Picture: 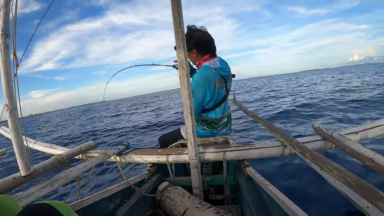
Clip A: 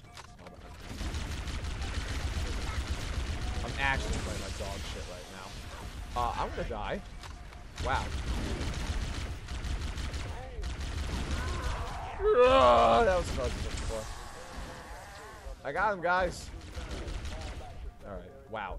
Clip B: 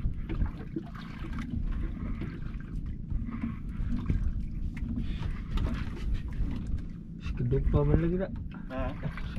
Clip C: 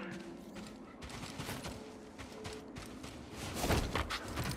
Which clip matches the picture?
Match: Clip B